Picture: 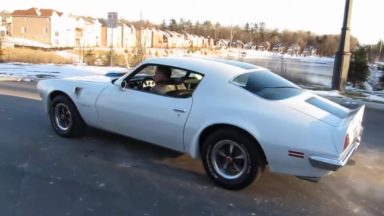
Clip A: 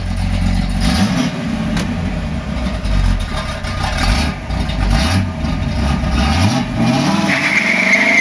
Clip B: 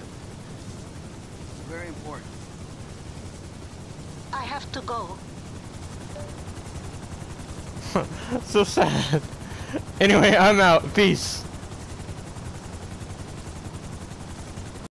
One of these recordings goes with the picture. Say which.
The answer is A